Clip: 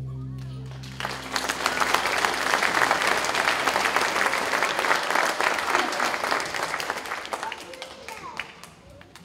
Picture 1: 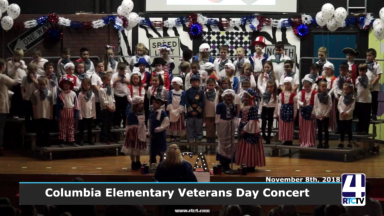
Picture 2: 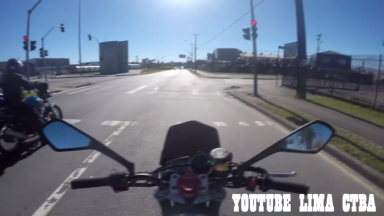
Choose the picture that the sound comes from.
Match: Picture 1